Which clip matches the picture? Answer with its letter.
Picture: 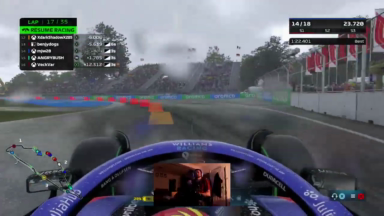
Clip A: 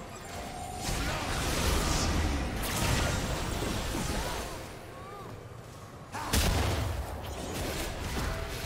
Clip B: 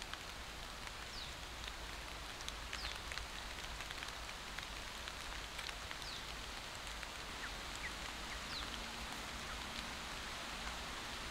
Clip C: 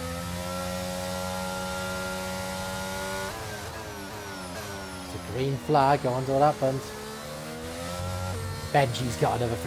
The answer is C